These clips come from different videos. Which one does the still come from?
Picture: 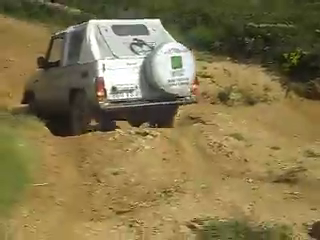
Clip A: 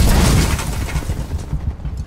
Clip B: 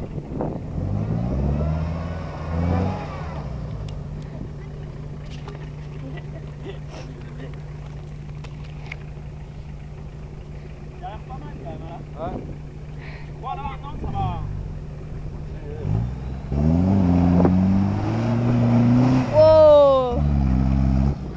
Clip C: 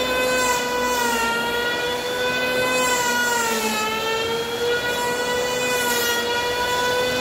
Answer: B